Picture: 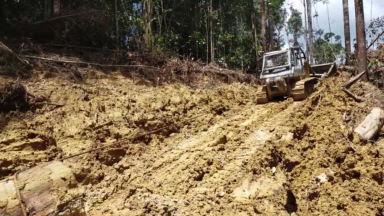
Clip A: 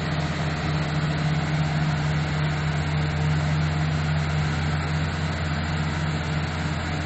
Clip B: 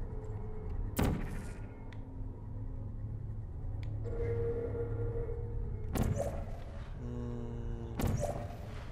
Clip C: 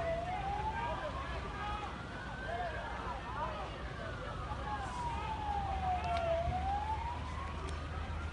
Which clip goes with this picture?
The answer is A